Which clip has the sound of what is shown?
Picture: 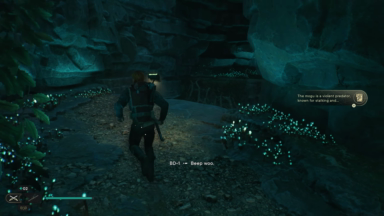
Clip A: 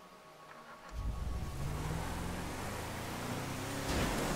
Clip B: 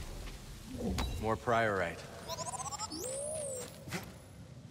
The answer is B